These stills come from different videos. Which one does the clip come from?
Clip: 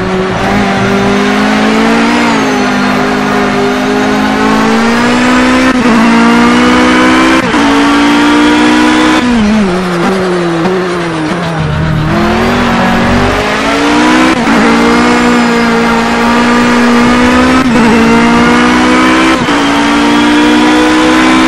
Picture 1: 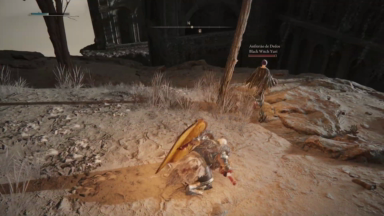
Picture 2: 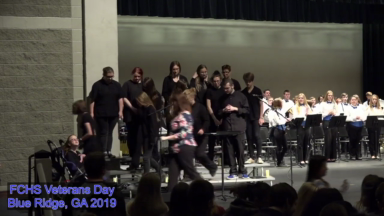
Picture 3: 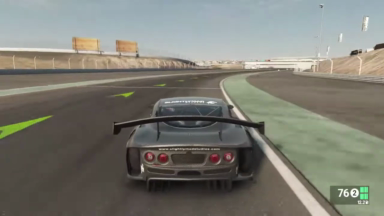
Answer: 3